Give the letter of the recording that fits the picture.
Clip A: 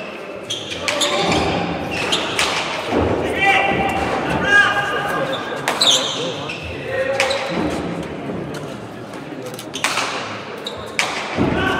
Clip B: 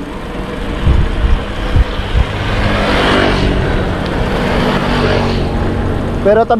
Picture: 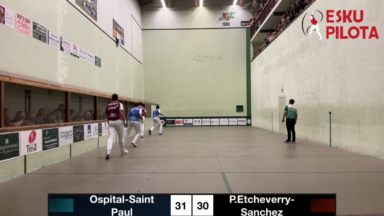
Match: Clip A